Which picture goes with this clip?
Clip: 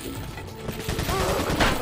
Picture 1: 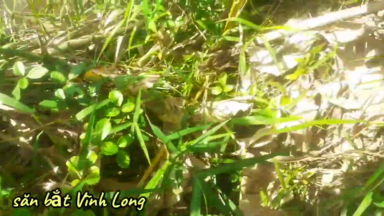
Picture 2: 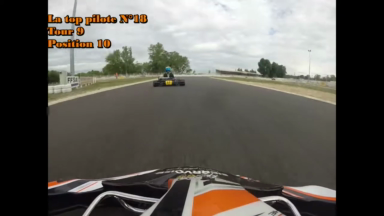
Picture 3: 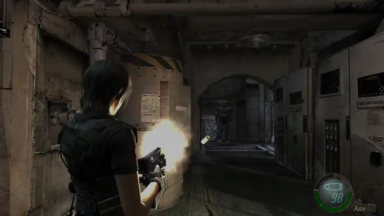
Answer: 3